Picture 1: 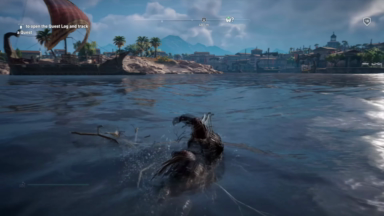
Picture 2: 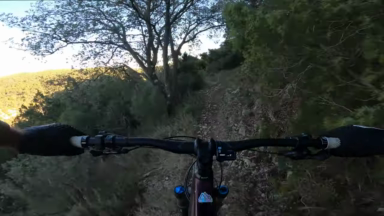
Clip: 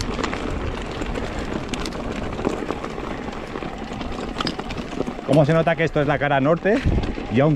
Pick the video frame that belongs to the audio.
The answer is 2